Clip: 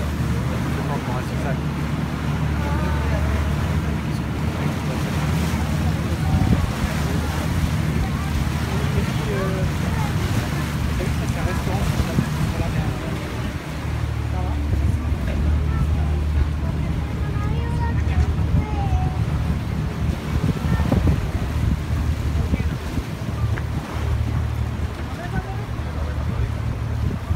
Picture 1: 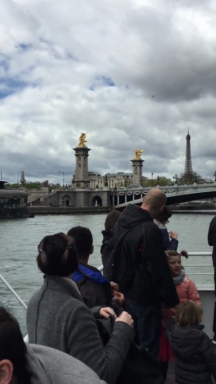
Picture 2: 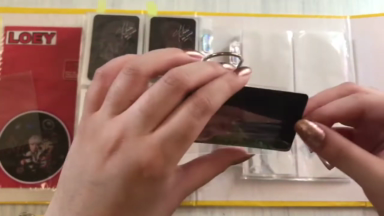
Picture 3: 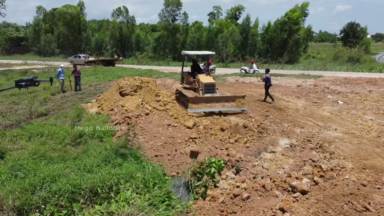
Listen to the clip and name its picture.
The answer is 1